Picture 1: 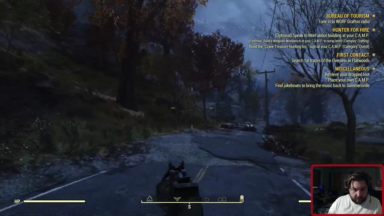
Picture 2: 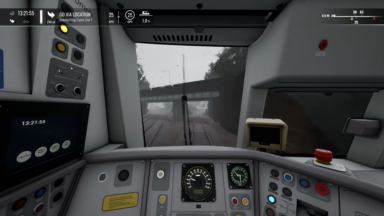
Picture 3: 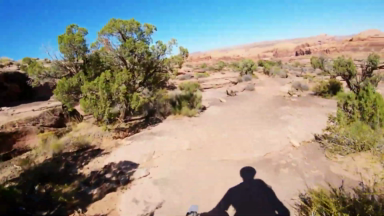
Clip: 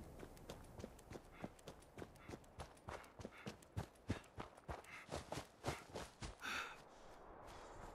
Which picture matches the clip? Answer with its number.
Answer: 1